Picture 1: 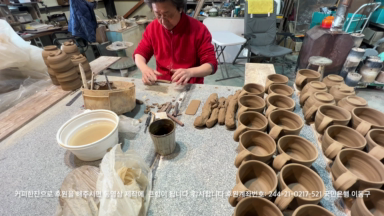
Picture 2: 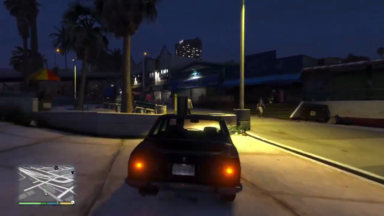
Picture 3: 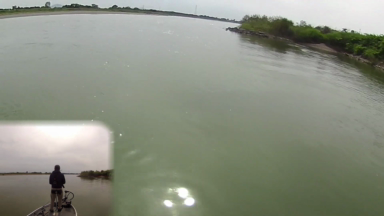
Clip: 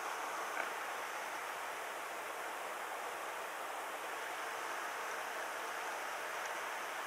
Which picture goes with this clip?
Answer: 3